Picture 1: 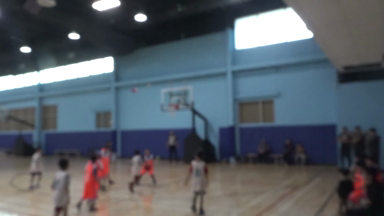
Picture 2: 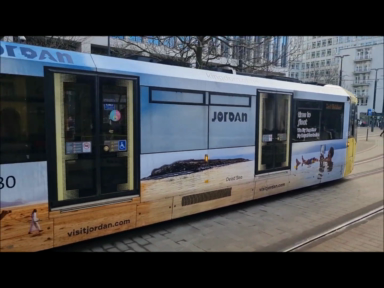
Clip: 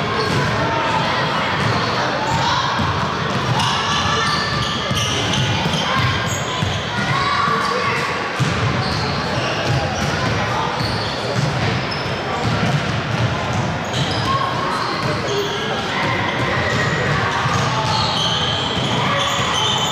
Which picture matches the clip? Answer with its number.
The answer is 1